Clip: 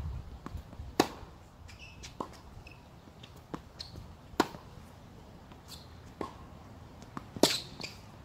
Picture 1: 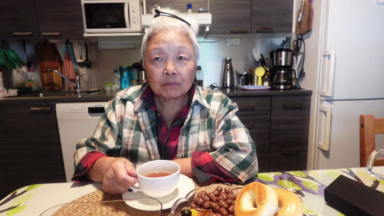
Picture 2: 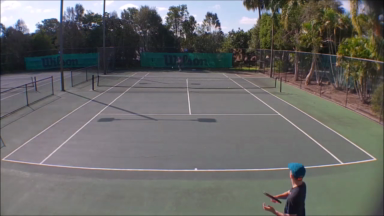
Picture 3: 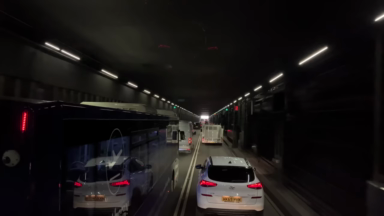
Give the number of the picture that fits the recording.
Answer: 2